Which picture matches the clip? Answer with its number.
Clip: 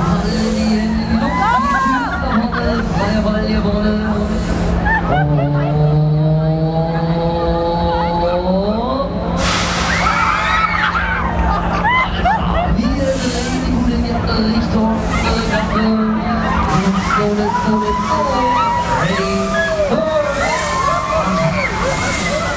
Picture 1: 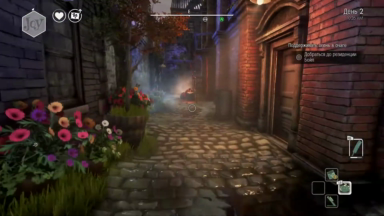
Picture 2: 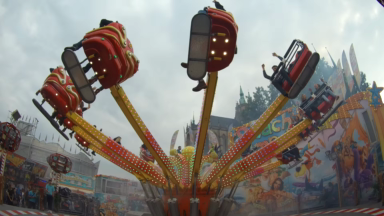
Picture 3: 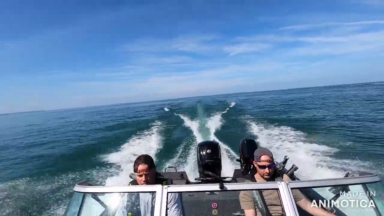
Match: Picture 2